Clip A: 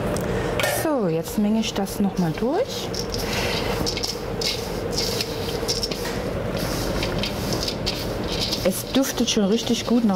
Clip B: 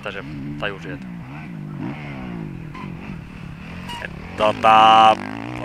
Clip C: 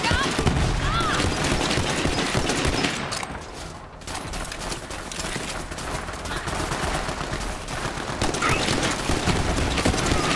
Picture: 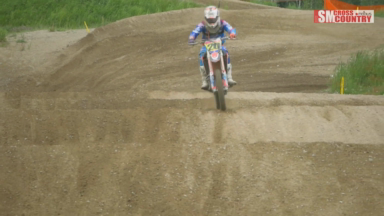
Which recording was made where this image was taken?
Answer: B